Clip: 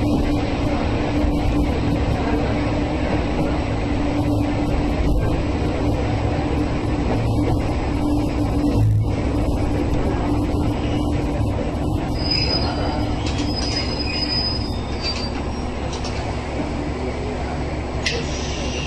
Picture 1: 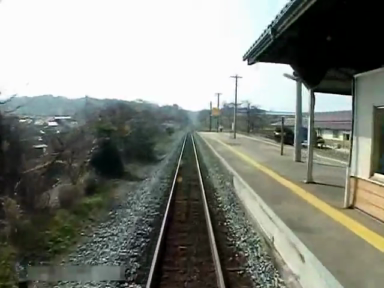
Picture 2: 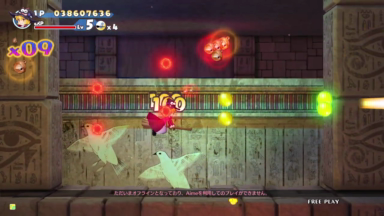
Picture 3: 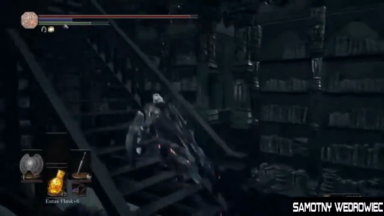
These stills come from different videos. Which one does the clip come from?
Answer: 1